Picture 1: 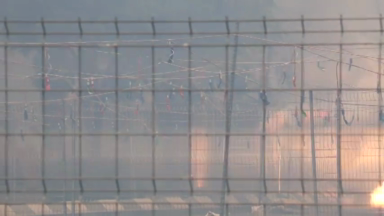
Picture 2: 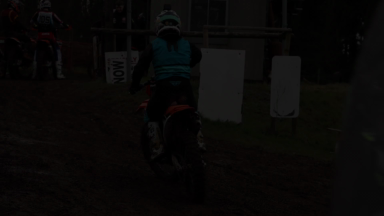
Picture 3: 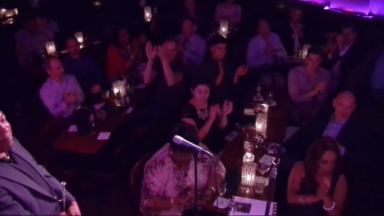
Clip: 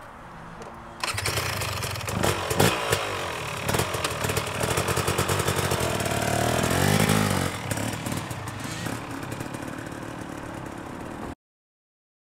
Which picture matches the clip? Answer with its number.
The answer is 2